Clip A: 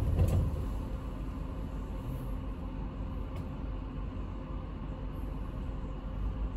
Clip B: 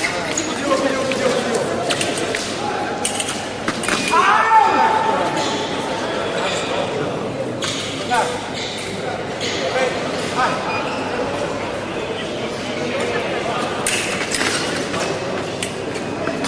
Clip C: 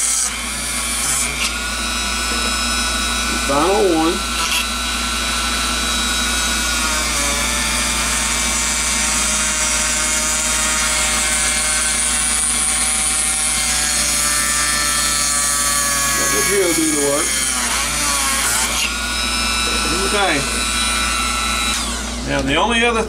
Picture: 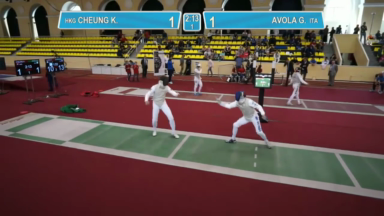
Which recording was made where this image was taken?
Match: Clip B